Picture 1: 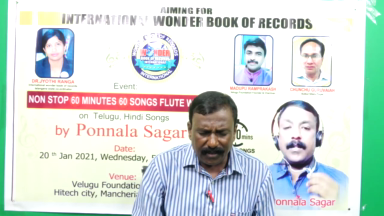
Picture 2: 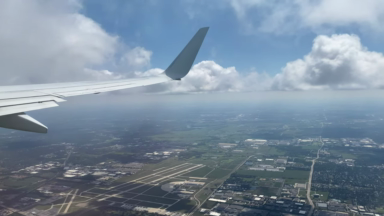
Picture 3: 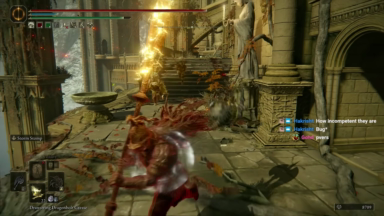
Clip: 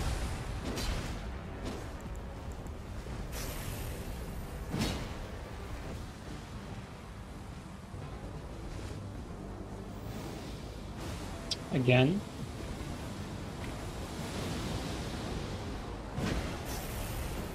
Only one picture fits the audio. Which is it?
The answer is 3